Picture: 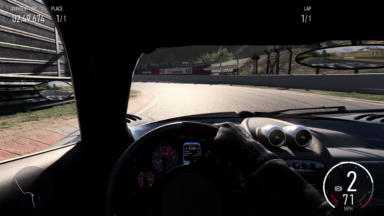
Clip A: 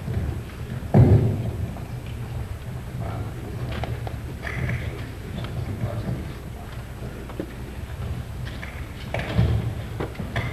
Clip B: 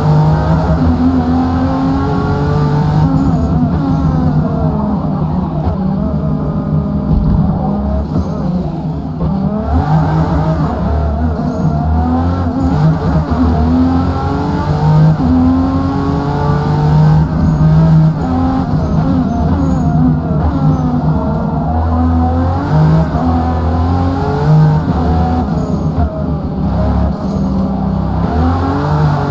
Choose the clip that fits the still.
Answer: B